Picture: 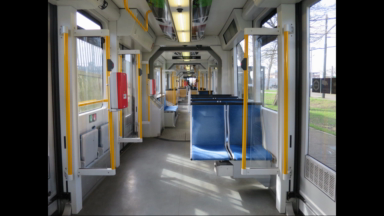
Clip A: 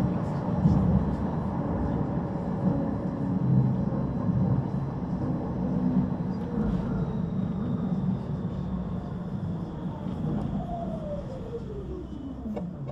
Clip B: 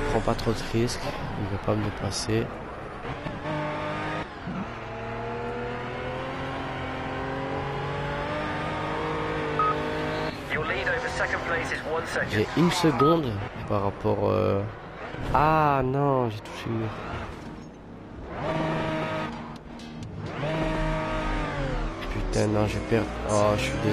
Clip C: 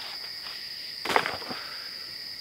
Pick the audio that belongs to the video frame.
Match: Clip A